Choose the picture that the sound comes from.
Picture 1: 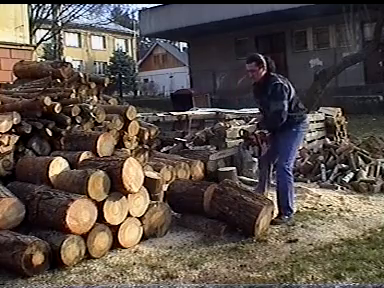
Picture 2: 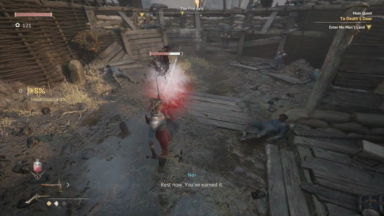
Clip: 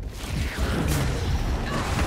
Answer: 2